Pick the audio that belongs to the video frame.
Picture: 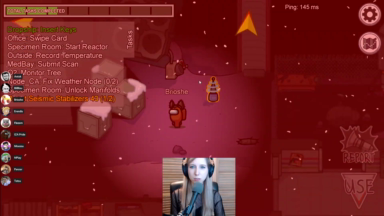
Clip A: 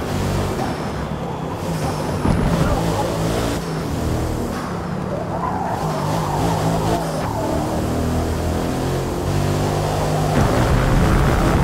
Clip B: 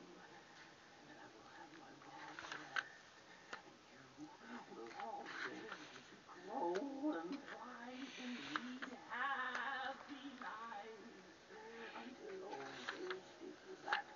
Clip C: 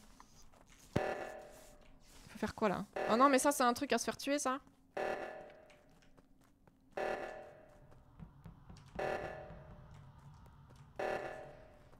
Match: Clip C